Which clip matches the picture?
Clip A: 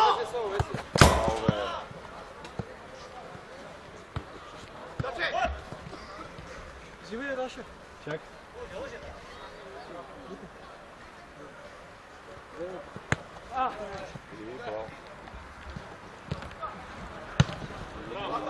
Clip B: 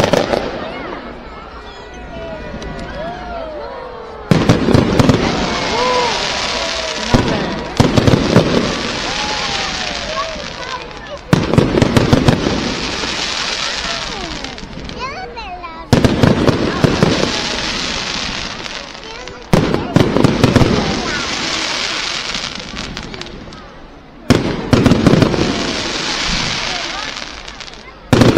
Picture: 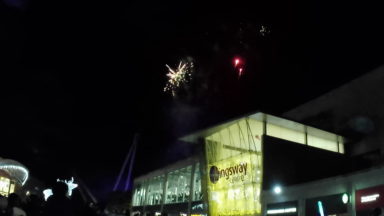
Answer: B